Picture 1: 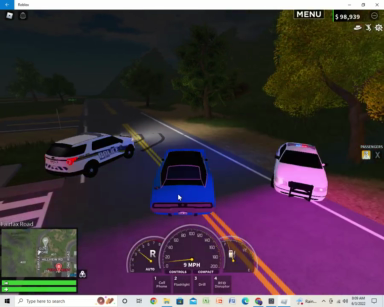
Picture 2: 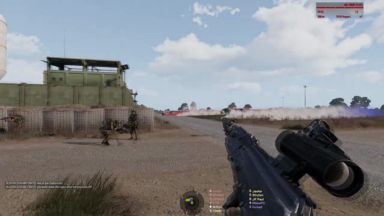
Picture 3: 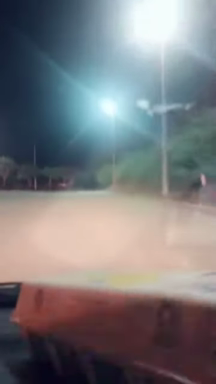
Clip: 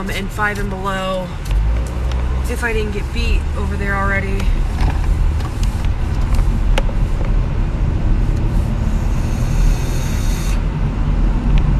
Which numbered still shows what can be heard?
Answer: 3